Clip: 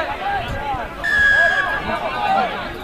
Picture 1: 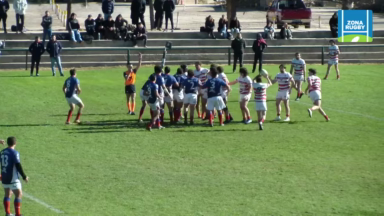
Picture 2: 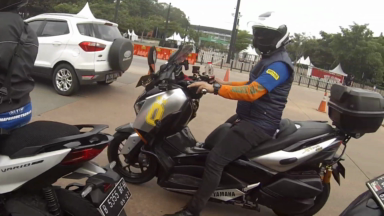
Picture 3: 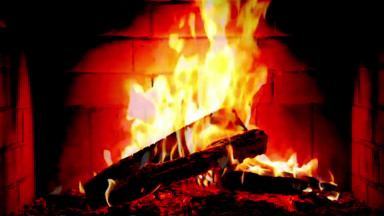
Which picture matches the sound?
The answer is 1